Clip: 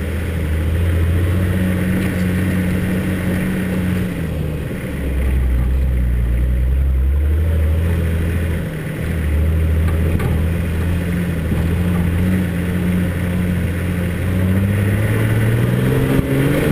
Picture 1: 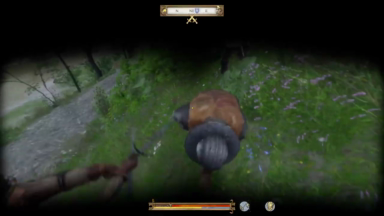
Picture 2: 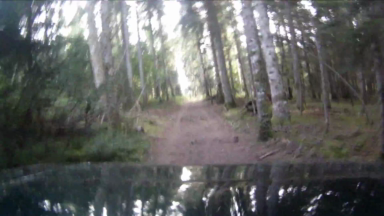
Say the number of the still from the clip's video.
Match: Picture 2